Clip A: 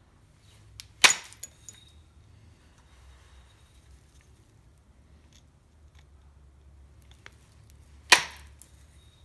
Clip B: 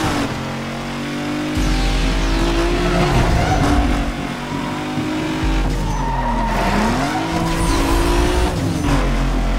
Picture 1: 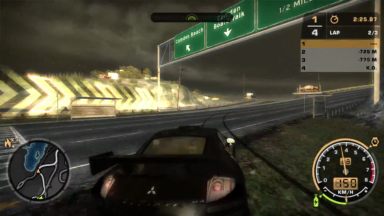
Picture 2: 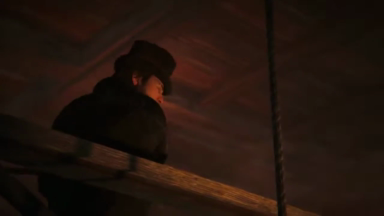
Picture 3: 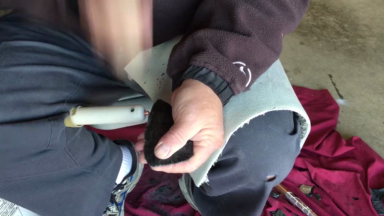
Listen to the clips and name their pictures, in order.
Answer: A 3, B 1